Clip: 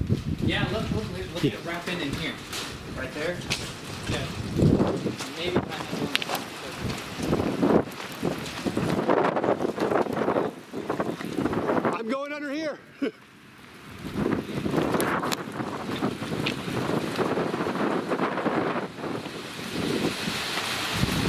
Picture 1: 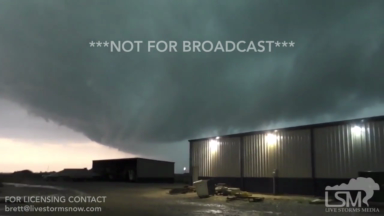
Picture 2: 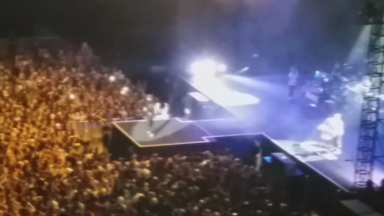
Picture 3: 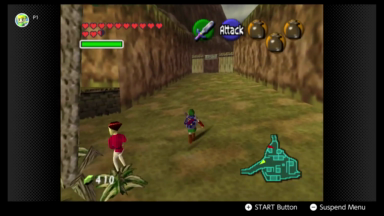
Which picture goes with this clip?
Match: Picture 1